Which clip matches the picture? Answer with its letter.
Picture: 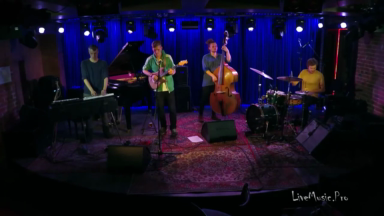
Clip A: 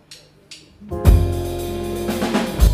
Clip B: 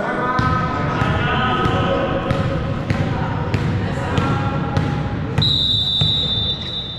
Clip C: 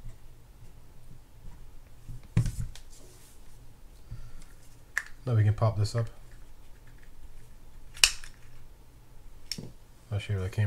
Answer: A